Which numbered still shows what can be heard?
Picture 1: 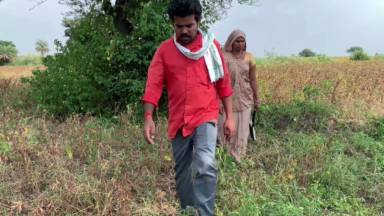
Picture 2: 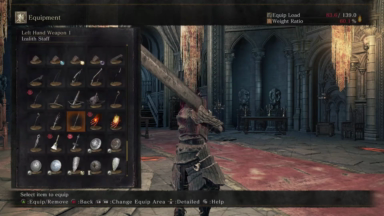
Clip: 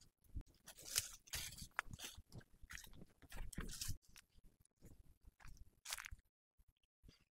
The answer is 1